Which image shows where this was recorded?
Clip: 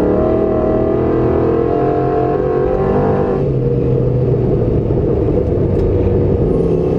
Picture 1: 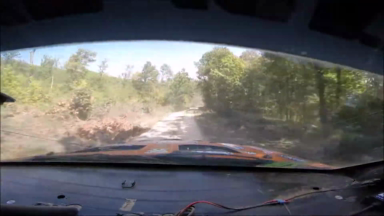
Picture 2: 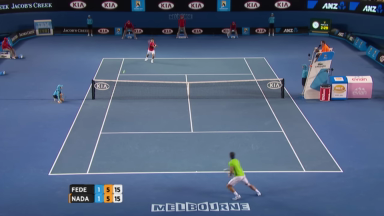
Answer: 1